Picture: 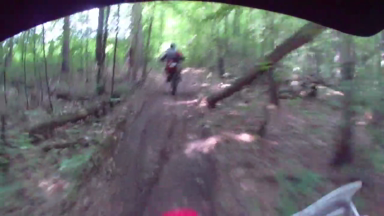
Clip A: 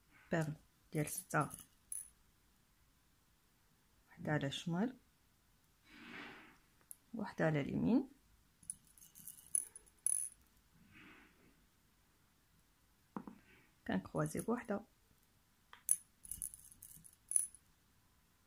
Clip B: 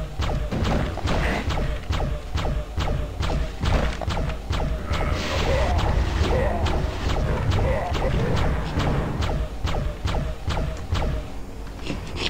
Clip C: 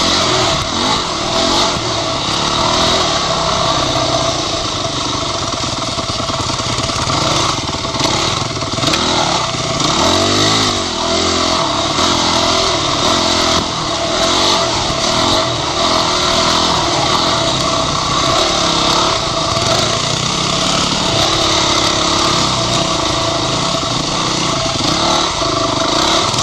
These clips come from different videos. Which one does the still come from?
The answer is C